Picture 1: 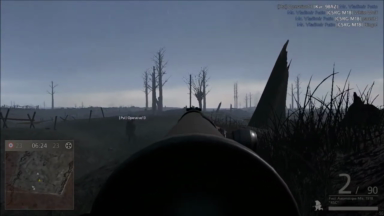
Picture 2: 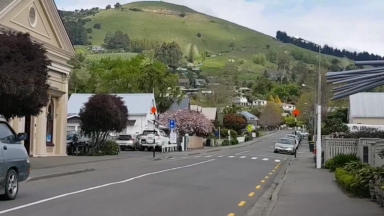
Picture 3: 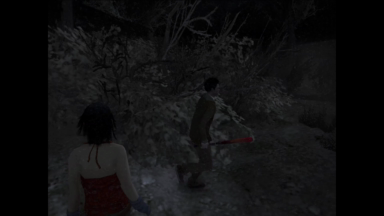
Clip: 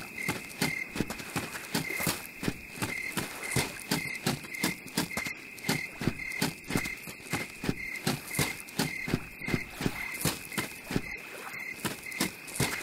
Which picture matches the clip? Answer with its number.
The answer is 3